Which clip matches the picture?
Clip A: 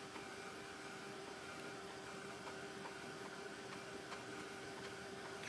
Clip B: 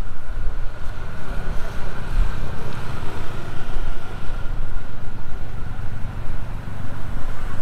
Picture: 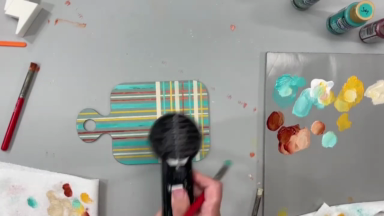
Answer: A